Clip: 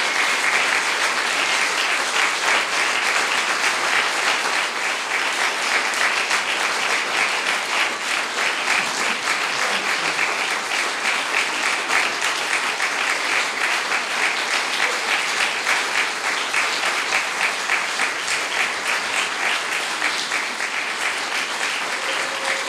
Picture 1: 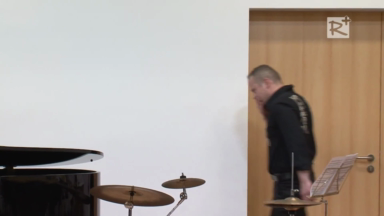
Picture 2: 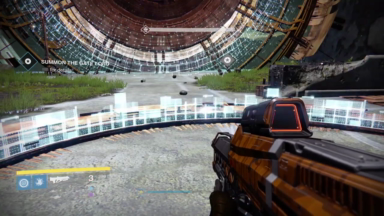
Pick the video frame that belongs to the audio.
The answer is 1